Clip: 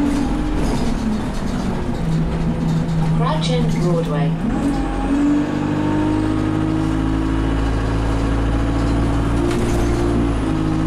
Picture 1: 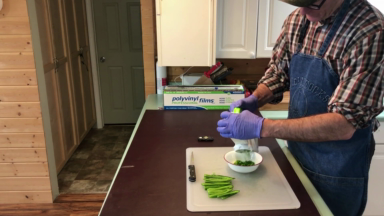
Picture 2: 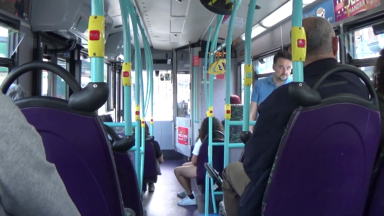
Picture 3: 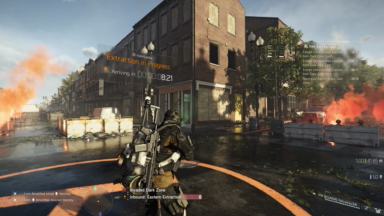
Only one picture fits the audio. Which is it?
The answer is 2